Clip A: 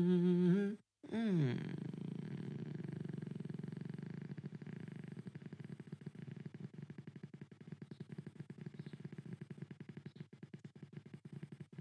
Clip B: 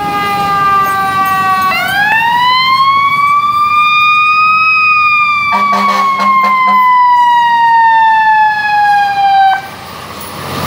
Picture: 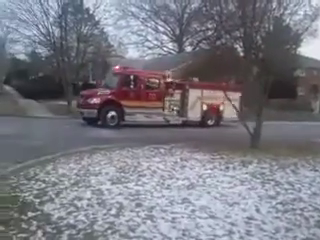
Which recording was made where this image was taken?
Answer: B